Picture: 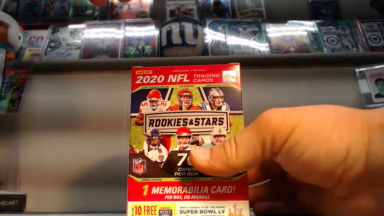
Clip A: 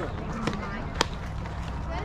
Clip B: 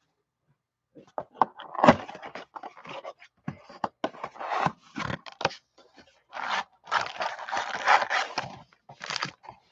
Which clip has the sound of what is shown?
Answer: B